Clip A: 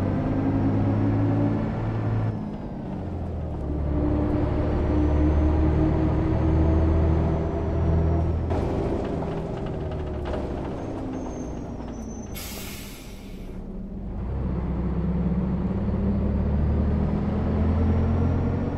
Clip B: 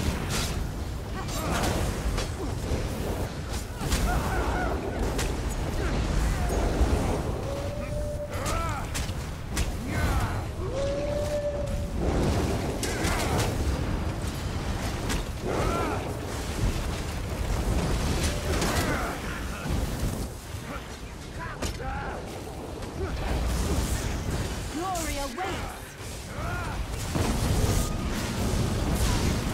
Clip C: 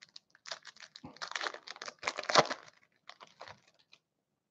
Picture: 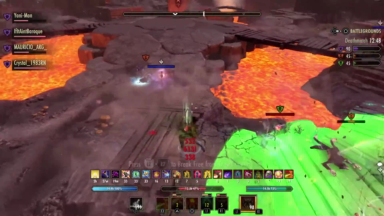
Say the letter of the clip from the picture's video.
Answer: B